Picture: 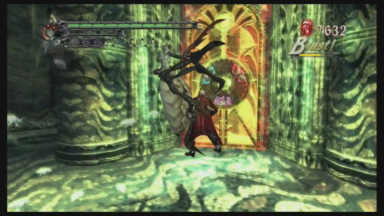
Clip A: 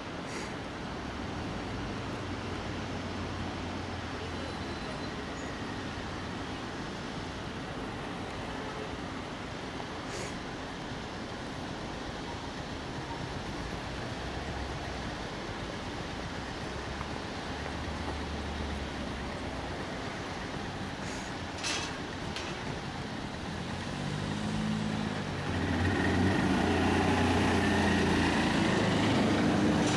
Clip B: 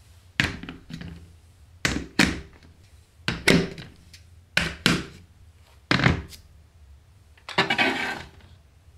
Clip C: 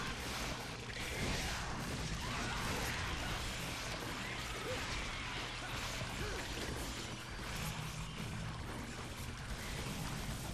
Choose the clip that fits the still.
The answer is C